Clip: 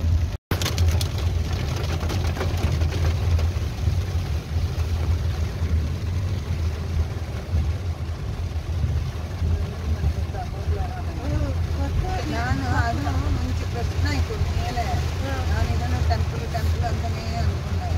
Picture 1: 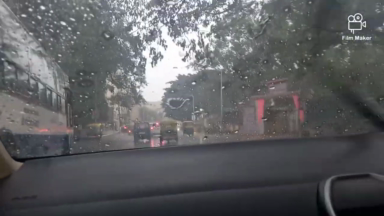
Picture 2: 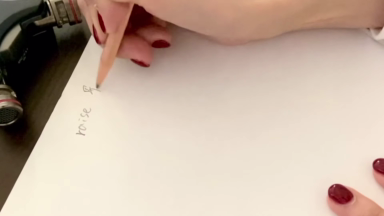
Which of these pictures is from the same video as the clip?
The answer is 1